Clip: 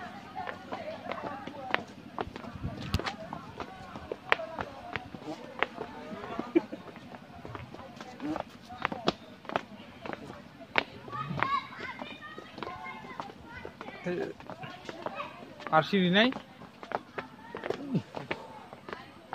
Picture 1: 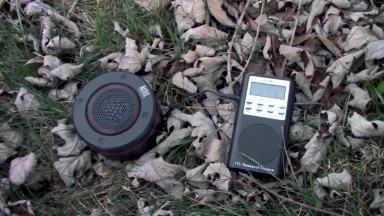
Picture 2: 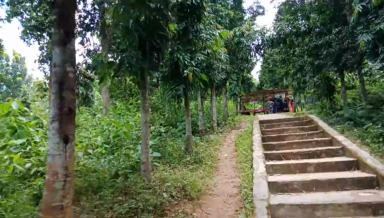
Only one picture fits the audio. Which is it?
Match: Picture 2